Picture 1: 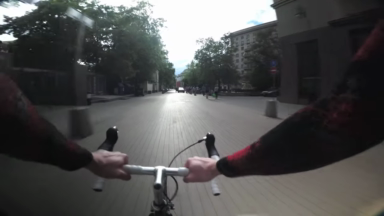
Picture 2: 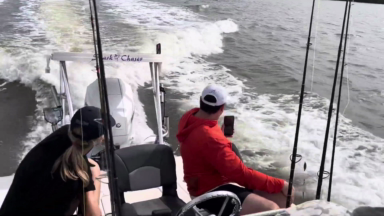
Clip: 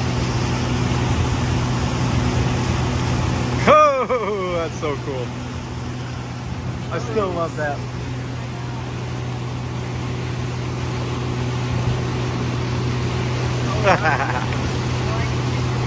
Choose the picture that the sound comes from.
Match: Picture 2